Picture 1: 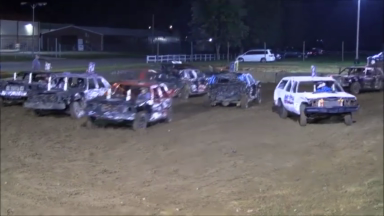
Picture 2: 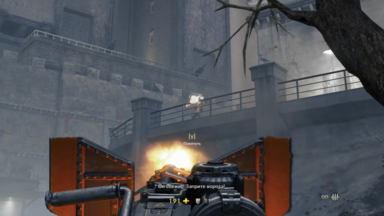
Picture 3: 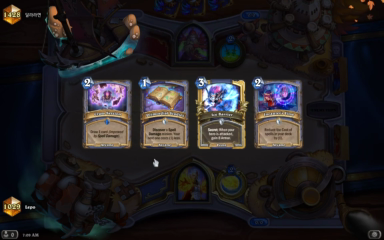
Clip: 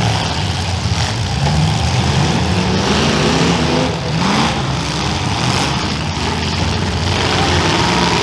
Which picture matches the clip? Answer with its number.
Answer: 1